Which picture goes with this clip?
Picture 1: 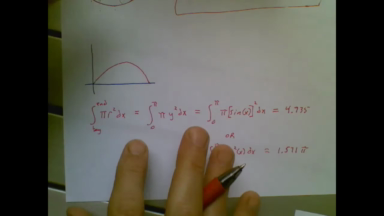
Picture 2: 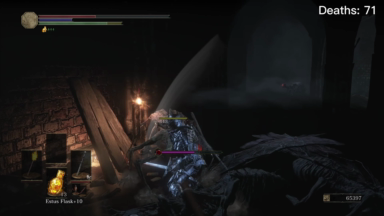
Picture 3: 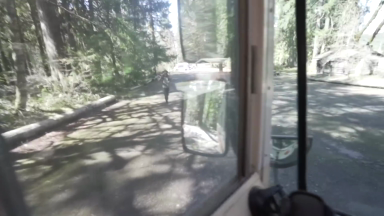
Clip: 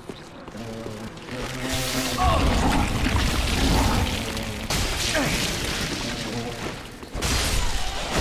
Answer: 2